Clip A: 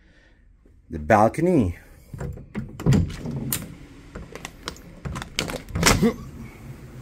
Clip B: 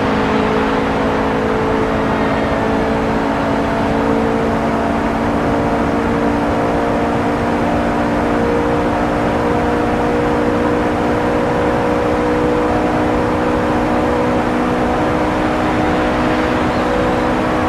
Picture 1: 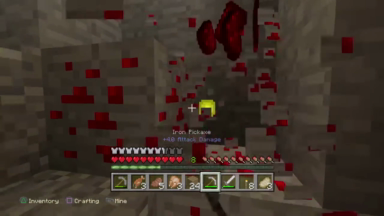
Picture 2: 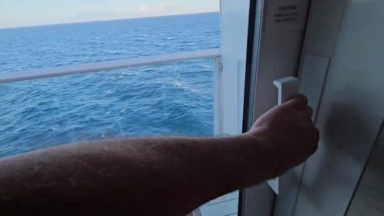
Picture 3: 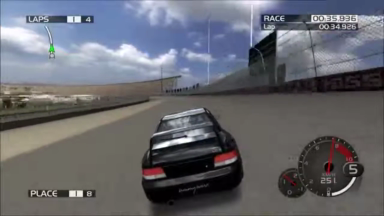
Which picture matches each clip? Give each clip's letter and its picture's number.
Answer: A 2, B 3